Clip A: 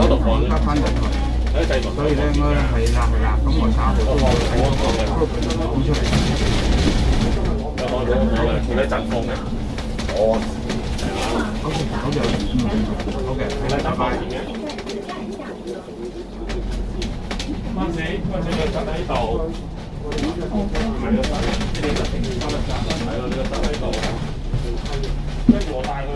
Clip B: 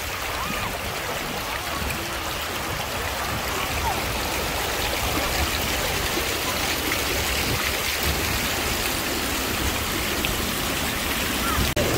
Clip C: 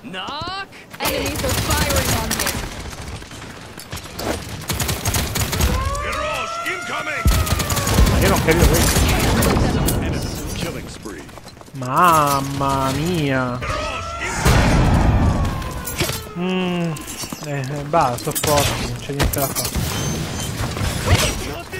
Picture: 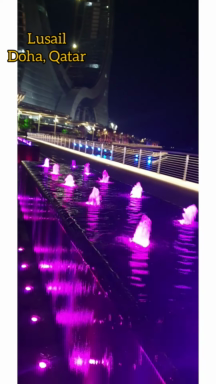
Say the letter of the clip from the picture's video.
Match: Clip B